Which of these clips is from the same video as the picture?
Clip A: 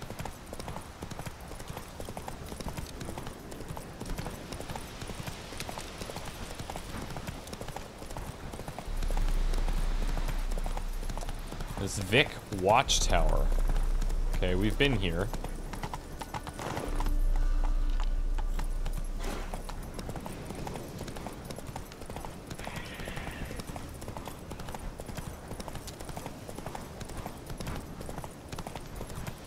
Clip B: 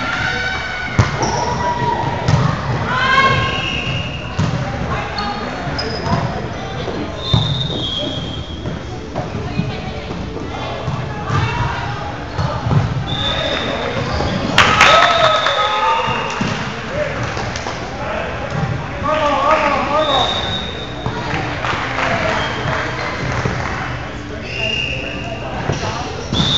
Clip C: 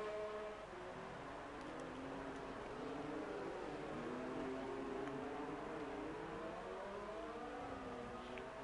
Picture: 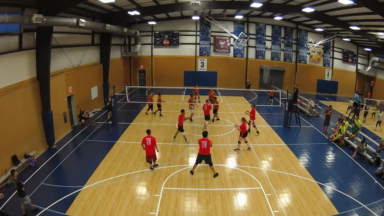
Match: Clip B